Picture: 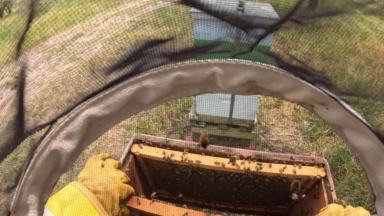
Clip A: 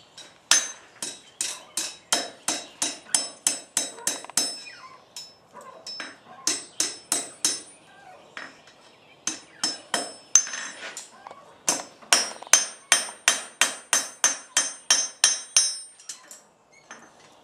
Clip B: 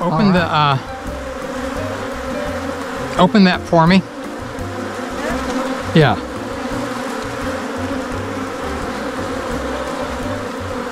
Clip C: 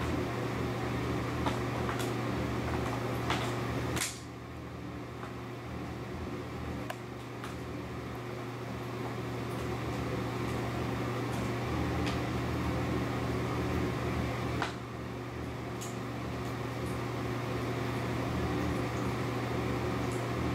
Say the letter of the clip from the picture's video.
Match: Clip B